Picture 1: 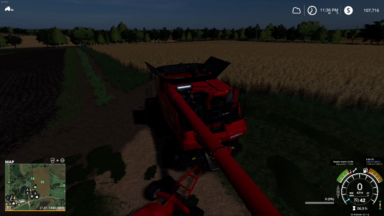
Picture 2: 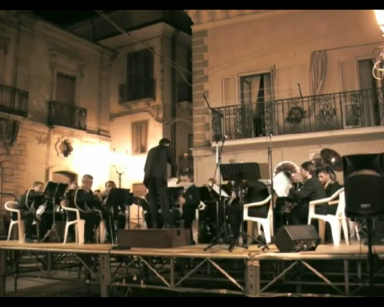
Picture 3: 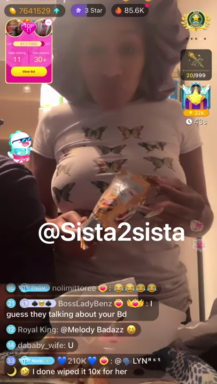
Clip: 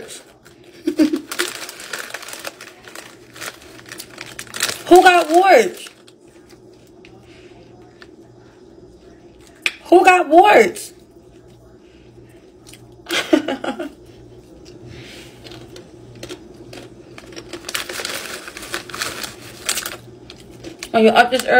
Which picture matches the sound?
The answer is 3